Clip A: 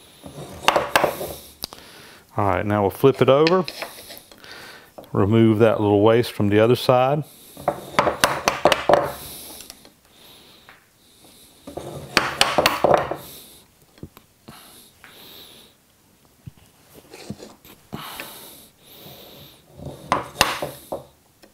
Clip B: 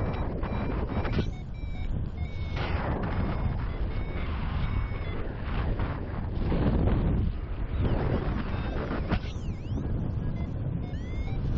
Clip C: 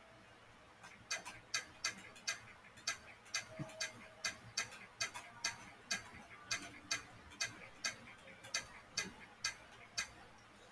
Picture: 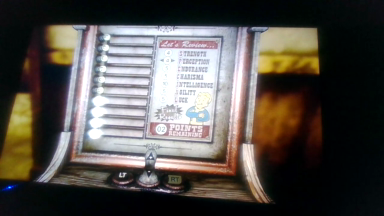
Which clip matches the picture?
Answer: C